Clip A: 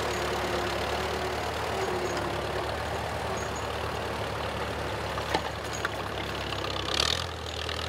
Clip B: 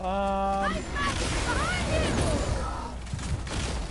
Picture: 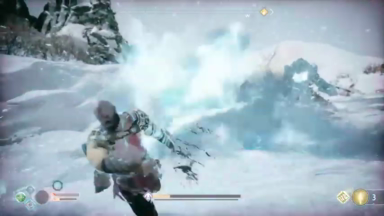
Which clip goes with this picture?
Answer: B